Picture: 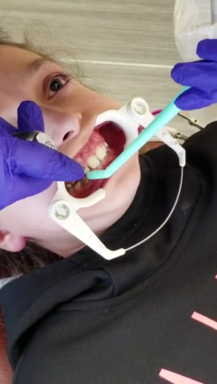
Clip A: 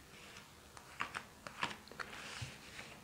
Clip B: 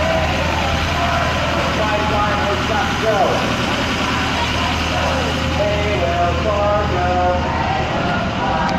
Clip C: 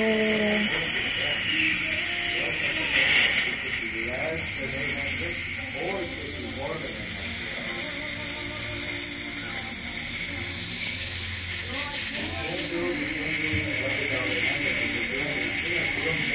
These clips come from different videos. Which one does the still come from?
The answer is C